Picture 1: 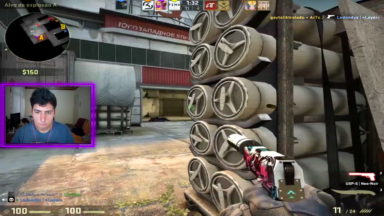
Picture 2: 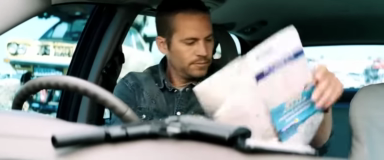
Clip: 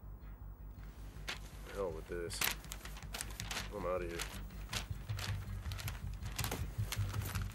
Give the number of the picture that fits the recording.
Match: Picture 2